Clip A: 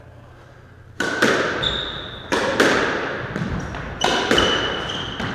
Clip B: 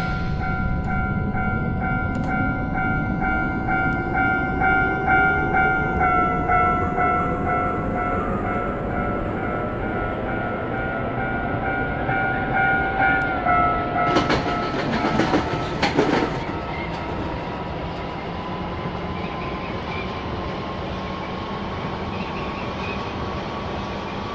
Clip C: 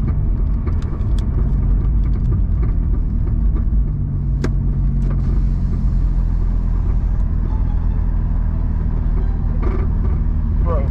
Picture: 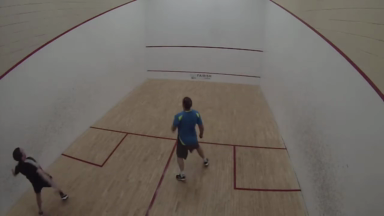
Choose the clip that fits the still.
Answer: A